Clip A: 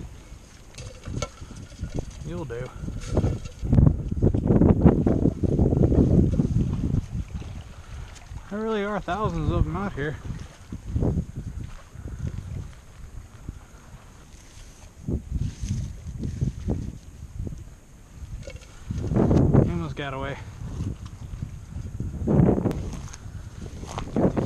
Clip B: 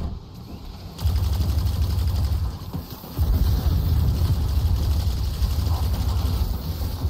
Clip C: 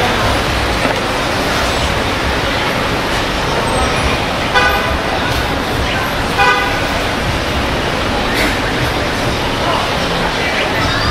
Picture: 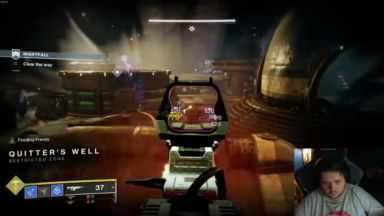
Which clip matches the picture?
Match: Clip B